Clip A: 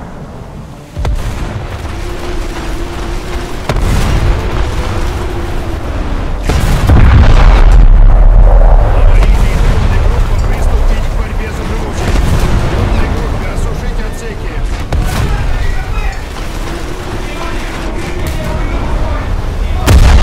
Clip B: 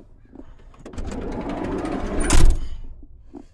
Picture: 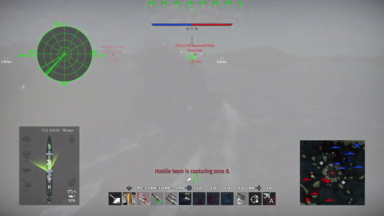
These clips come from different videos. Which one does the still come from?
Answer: A